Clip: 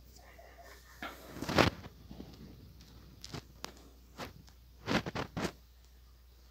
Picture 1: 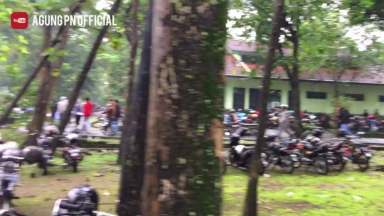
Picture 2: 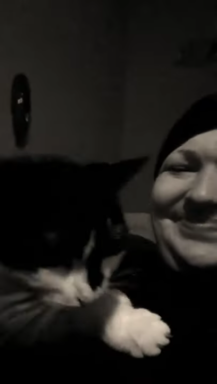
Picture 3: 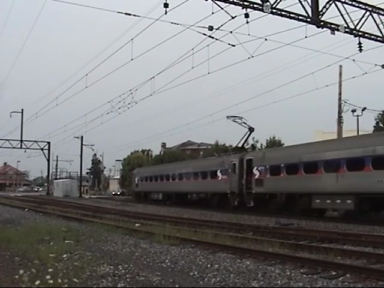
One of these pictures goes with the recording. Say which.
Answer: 2